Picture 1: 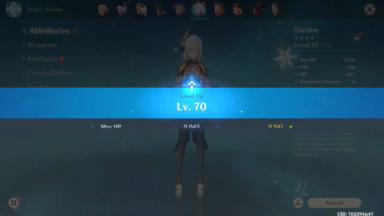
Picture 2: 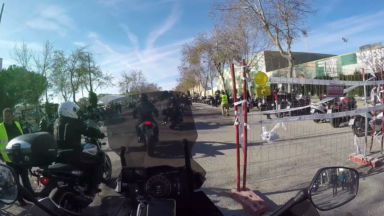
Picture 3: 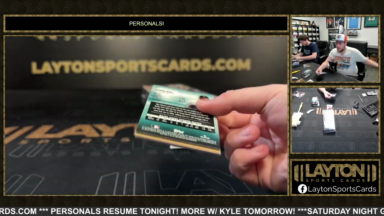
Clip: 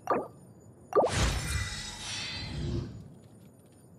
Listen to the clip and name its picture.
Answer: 1